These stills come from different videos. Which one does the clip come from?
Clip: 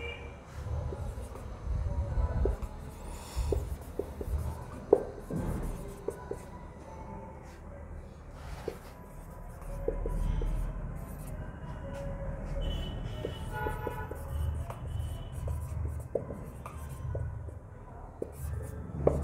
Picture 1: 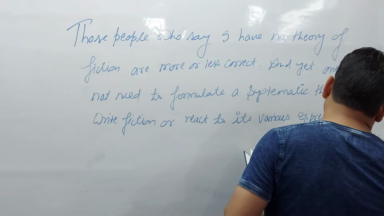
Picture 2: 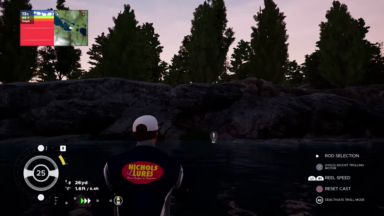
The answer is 1